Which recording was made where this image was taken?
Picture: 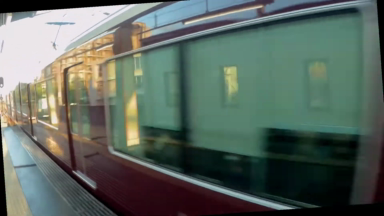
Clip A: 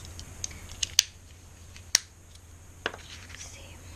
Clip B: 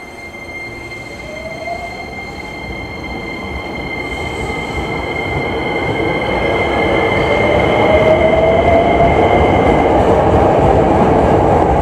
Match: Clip B